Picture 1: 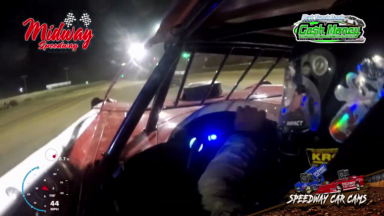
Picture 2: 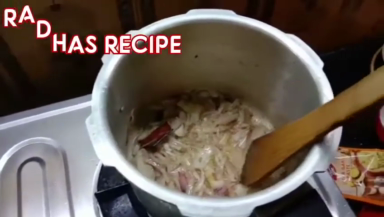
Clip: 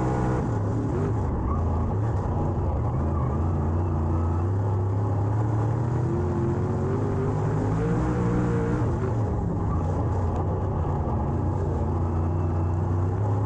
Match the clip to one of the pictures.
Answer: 1